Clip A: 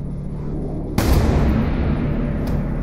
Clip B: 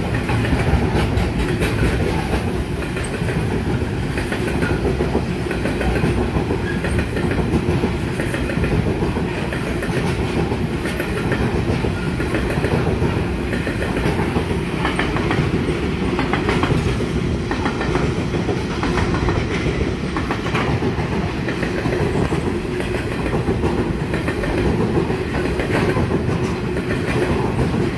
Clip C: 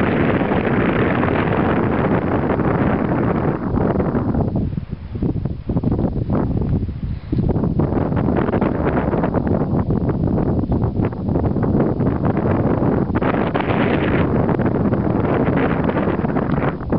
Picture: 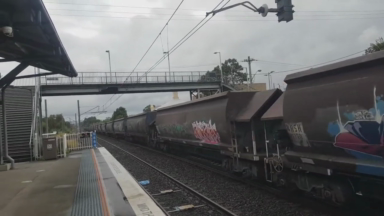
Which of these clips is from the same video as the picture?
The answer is B